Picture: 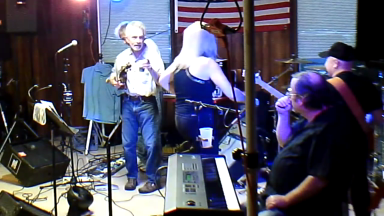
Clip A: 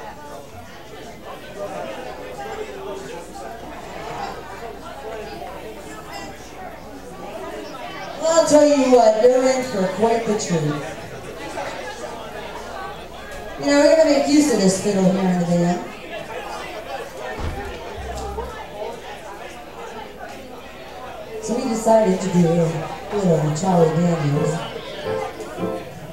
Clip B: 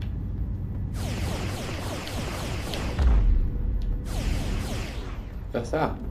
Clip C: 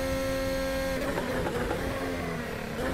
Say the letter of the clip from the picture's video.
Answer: A